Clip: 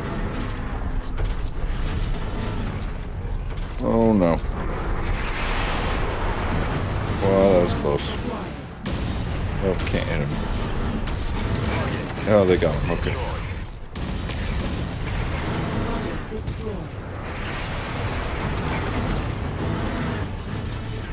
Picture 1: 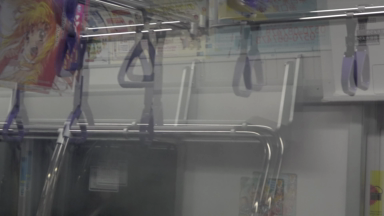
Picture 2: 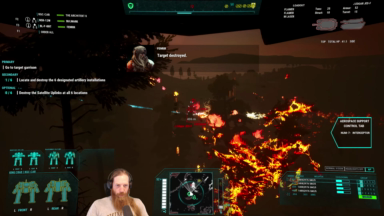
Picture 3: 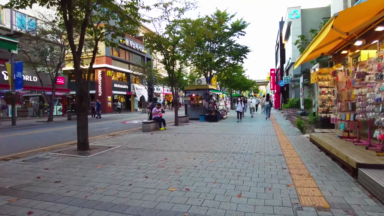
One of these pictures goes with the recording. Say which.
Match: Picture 2